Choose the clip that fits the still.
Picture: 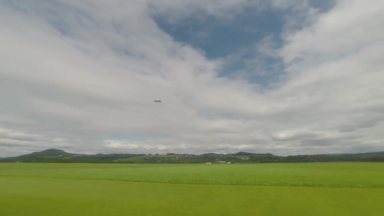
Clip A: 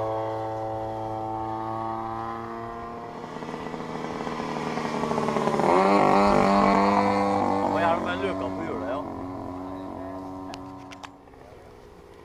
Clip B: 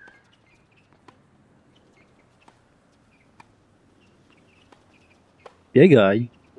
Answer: A